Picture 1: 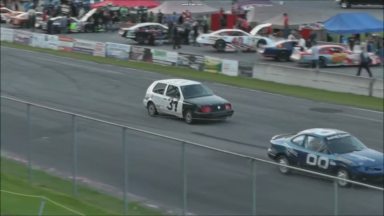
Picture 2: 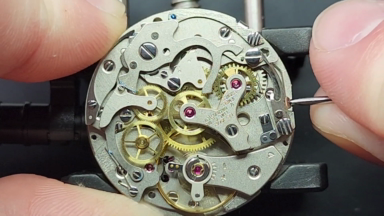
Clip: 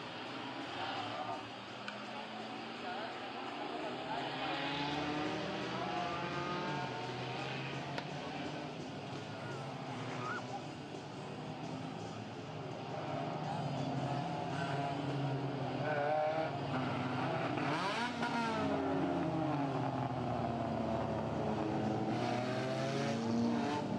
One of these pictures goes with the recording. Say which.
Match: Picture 1